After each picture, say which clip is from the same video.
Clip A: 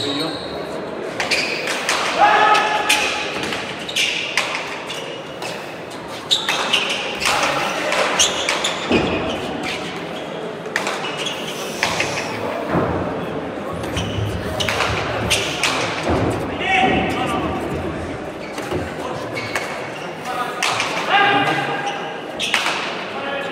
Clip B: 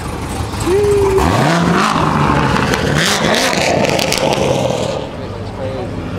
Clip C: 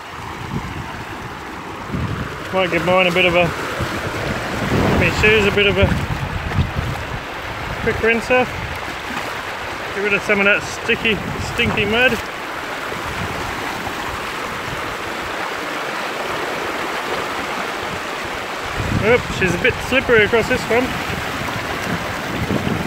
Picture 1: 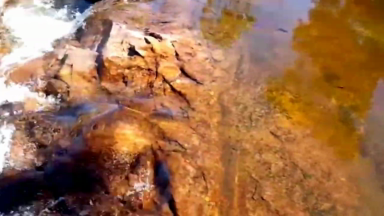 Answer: C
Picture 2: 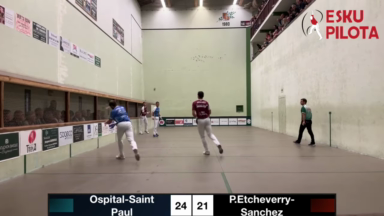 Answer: A